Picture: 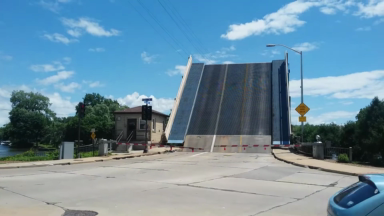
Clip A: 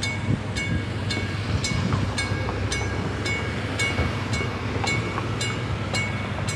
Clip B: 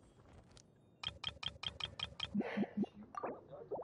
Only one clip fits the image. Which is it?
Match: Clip A